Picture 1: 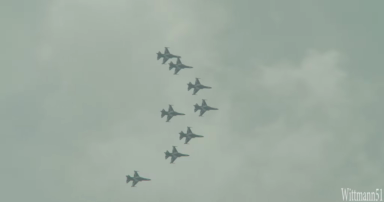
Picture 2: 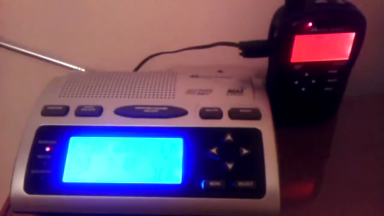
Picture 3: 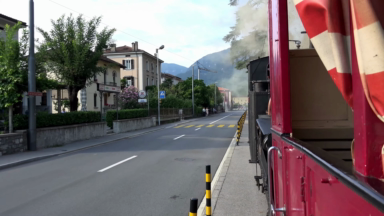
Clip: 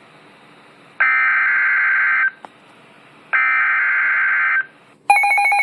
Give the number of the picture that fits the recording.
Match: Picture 2